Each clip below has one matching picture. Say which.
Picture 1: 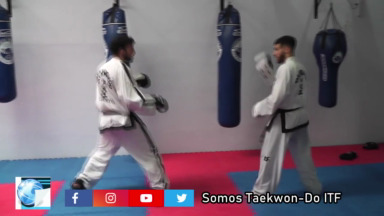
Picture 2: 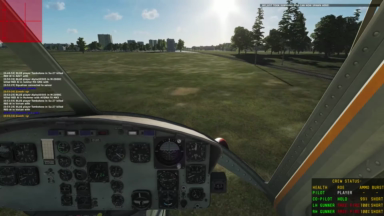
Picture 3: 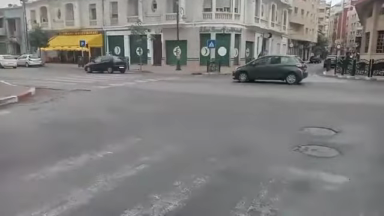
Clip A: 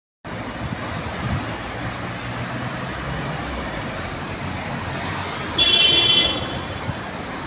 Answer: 3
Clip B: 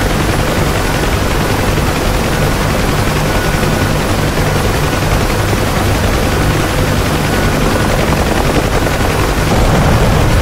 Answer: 2